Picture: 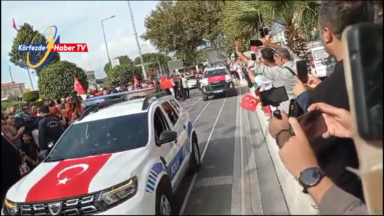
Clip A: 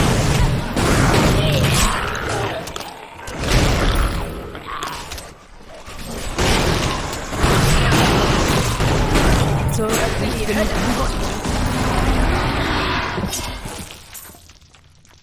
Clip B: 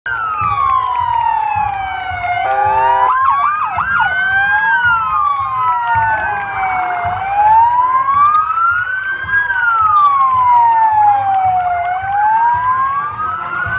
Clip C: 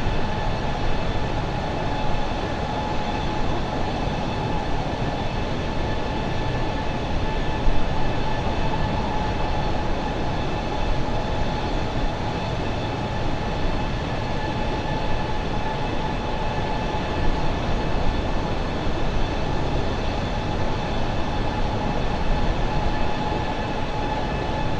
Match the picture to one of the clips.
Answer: B